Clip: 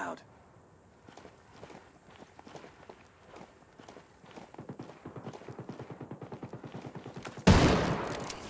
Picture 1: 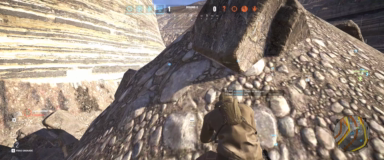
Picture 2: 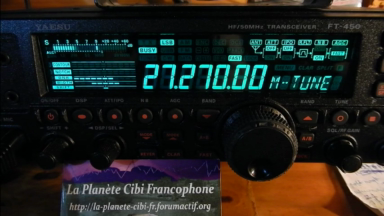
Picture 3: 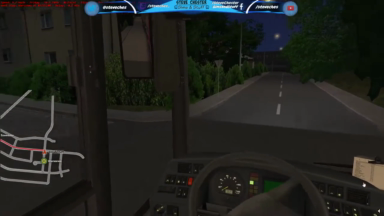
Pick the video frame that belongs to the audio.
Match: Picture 1